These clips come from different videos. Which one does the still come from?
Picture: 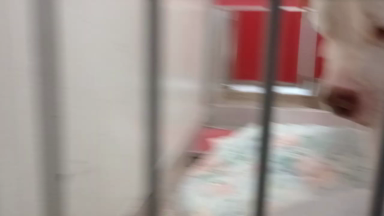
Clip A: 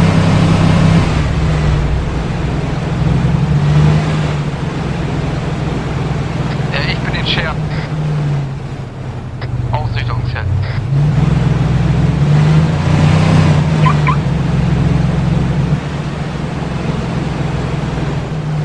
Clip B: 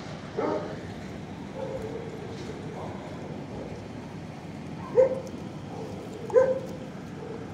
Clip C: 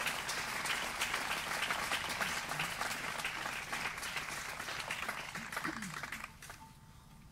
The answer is B